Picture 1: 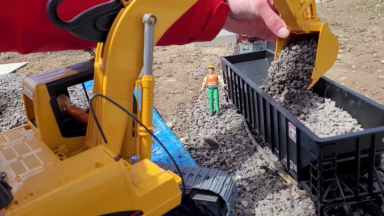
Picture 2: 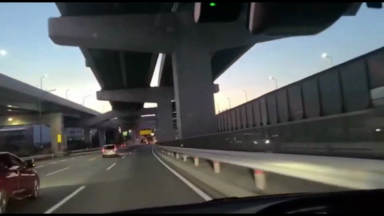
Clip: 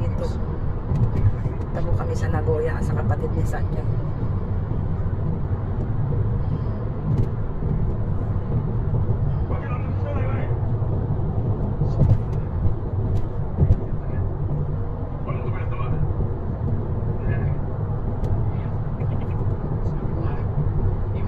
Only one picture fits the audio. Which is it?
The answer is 2